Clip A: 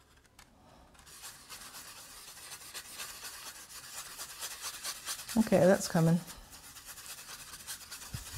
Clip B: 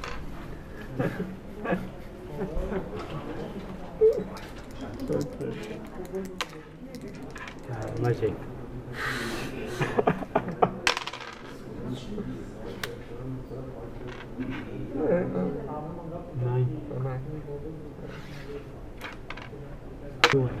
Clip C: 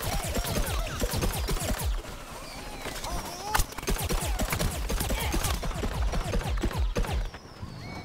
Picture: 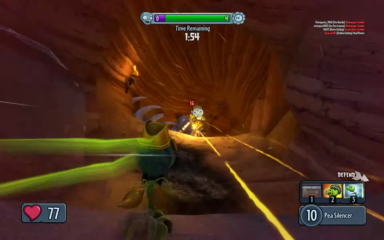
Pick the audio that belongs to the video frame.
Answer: C